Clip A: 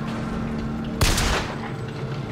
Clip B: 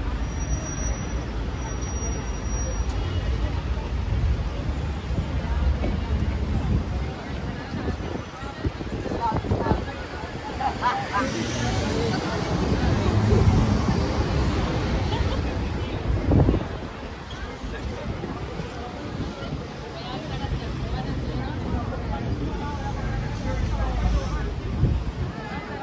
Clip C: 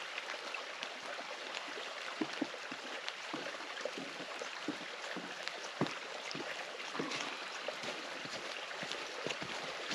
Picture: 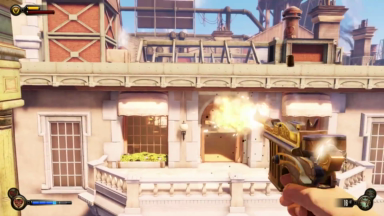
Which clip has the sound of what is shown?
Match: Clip A